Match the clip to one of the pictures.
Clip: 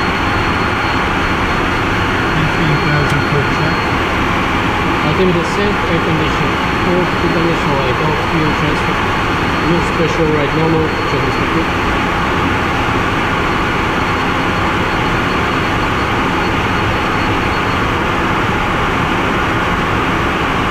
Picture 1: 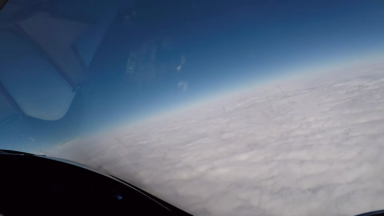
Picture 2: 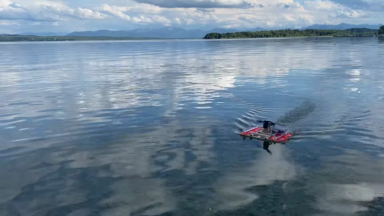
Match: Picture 1